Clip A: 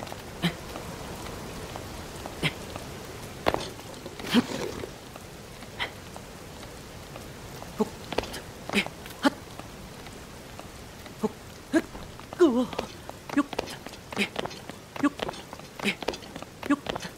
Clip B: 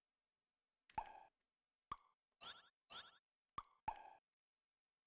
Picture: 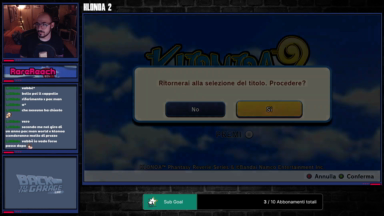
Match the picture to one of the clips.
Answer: B